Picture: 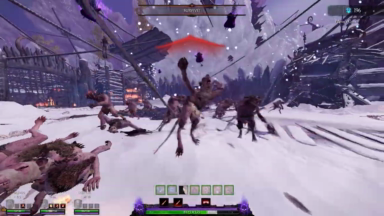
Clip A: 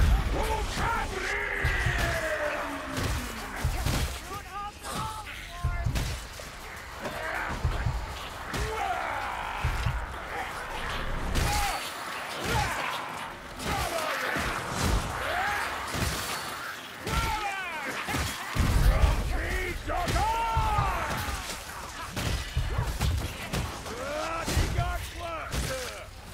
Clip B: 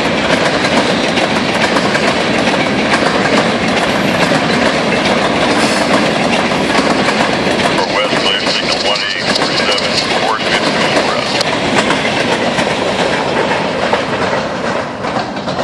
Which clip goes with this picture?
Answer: A